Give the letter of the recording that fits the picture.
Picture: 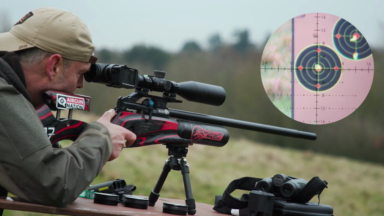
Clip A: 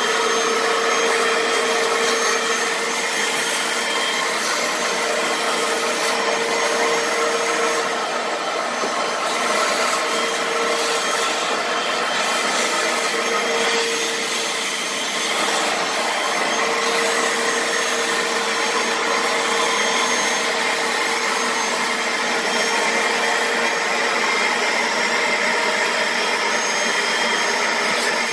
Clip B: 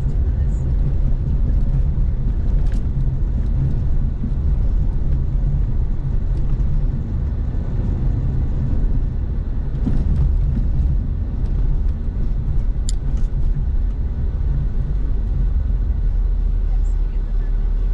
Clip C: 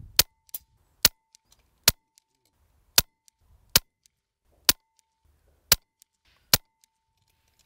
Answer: C